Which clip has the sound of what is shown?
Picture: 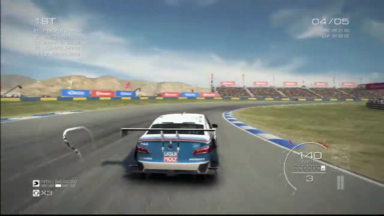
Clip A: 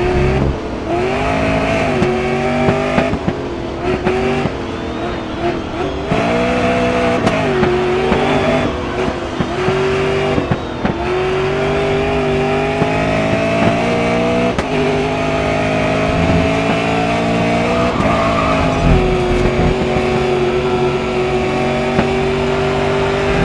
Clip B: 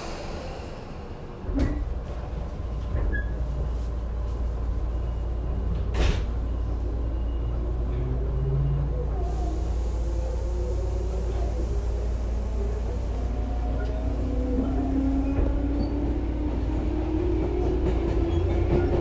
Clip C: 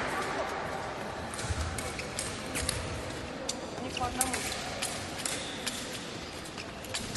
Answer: A